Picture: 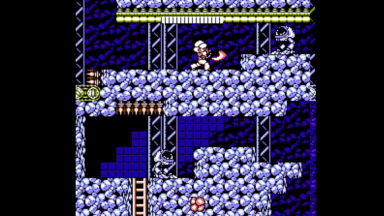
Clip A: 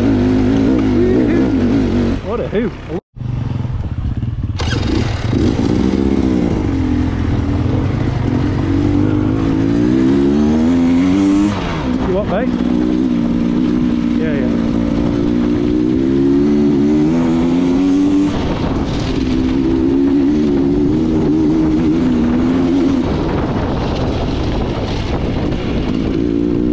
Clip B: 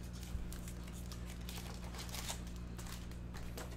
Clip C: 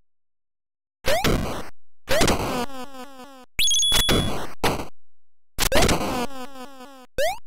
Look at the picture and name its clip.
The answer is C